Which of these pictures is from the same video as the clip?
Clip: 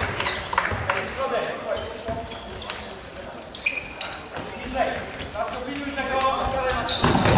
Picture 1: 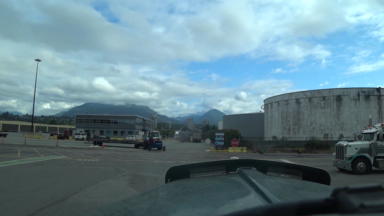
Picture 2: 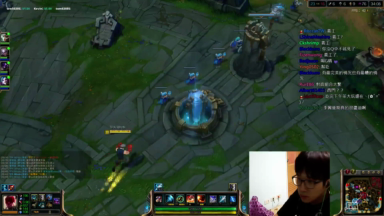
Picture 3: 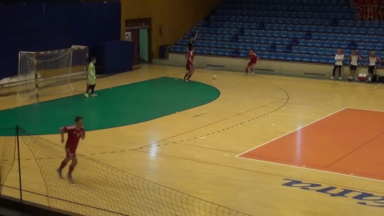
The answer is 3